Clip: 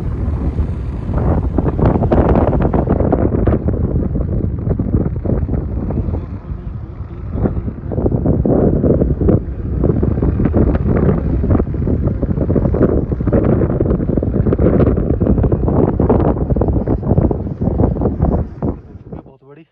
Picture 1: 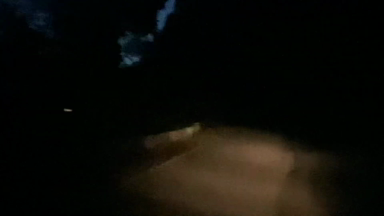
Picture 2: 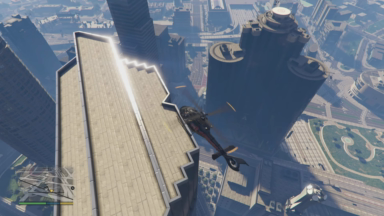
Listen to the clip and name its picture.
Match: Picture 1